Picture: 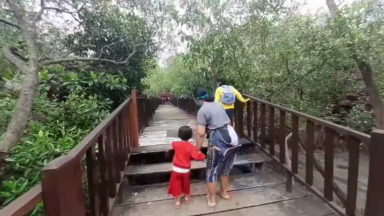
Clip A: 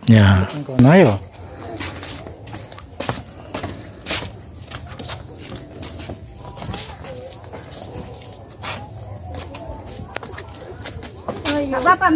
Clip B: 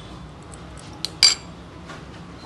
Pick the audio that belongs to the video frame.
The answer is A